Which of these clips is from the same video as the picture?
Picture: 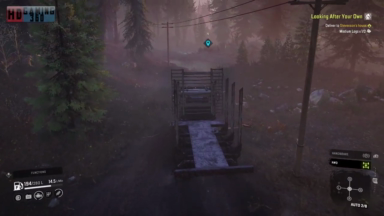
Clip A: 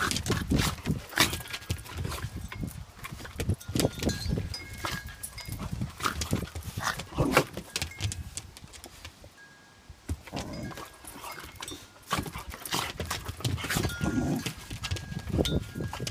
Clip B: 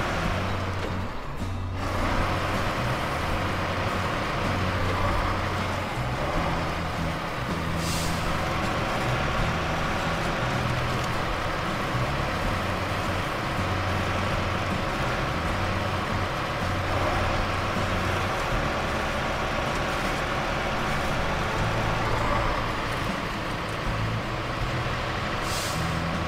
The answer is B